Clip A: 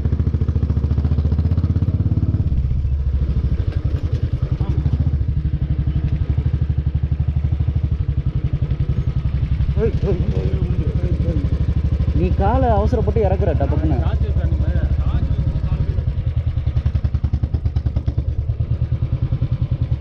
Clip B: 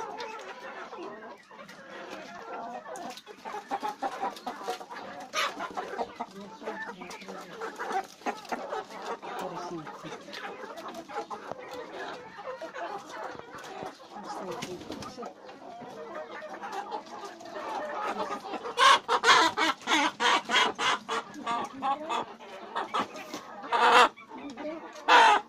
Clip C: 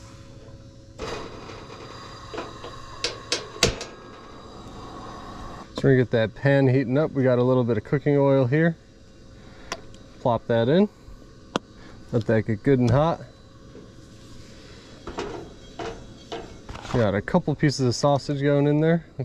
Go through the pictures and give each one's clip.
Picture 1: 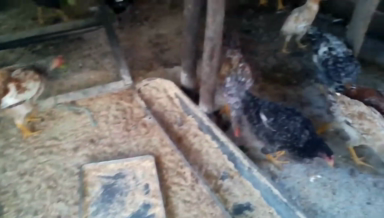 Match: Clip B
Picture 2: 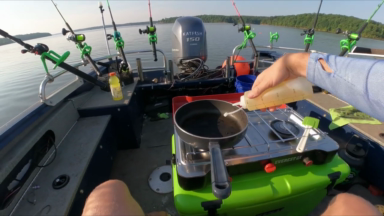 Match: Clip C